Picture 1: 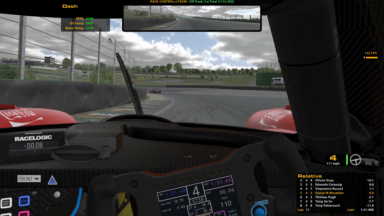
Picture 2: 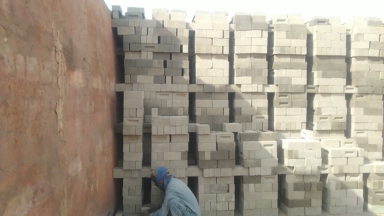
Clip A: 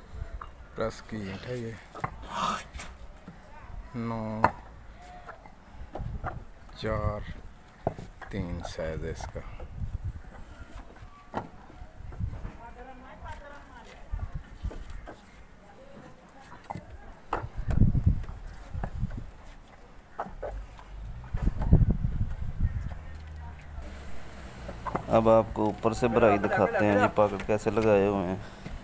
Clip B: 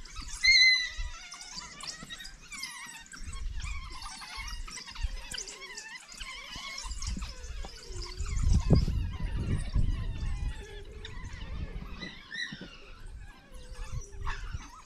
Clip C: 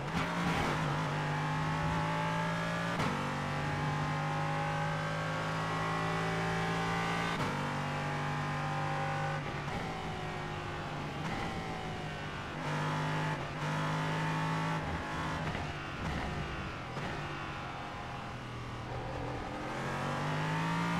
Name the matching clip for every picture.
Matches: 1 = C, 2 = A